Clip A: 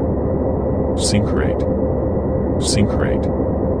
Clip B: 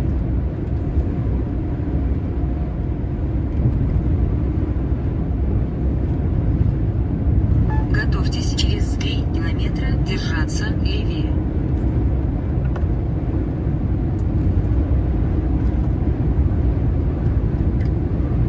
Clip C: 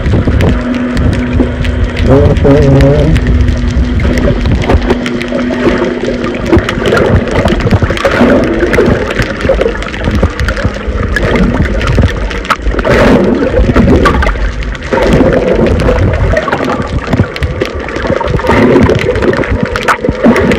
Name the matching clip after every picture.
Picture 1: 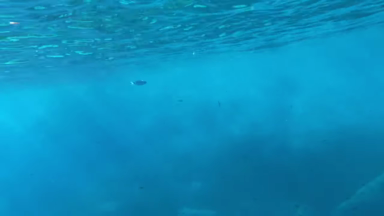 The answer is C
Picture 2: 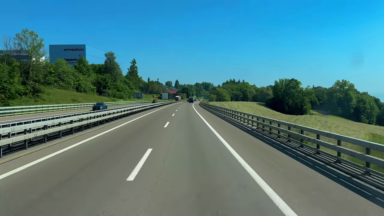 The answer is B